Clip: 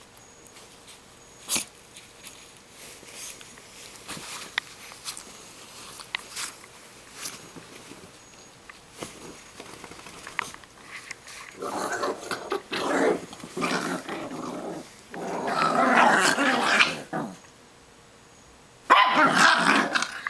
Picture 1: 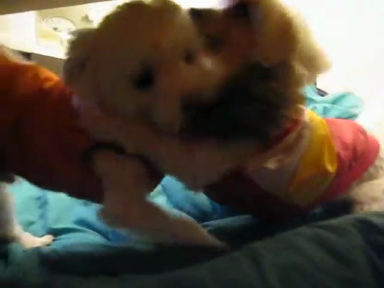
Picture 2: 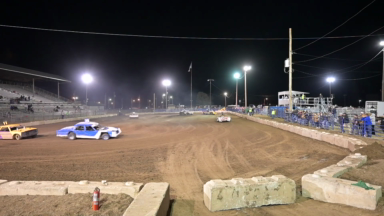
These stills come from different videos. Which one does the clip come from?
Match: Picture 1